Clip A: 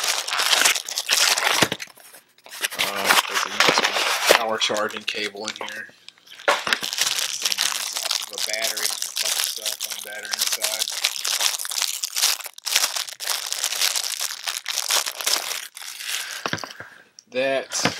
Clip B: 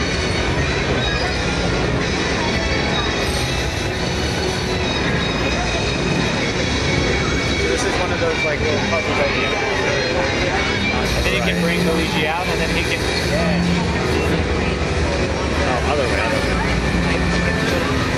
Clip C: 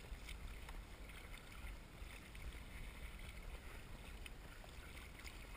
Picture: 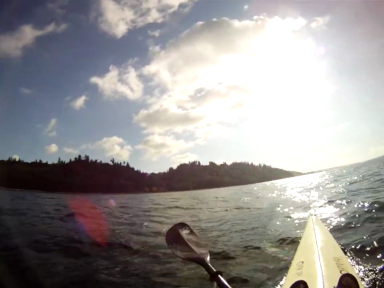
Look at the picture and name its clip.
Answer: C